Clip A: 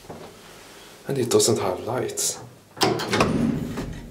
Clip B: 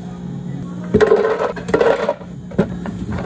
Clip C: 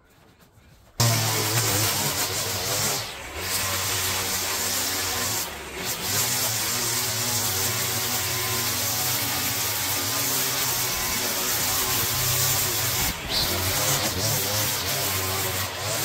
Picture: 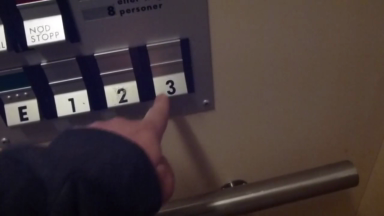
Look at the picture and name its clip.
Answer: A